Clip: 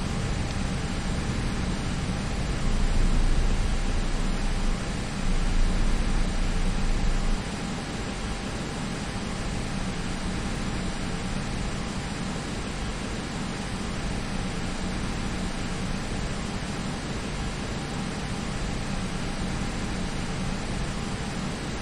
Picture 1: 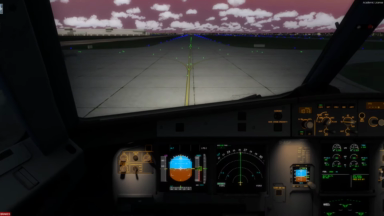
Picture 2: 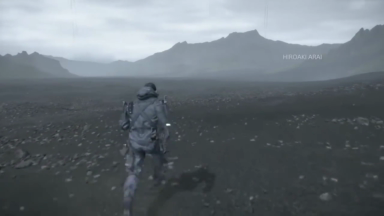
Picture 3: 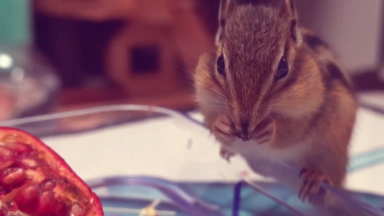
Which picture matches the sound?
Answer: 1